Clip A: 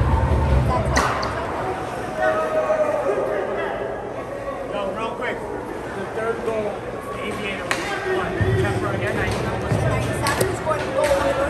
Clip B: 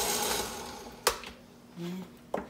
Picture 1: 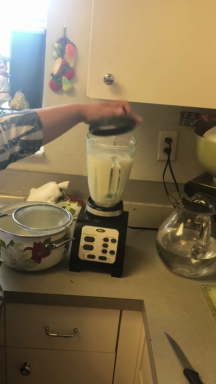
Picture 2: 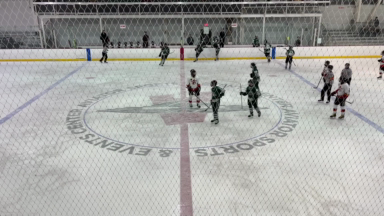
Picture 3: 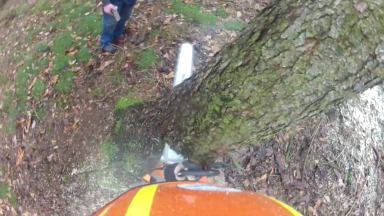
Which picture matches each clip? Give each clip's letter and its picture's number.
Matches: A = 2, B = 1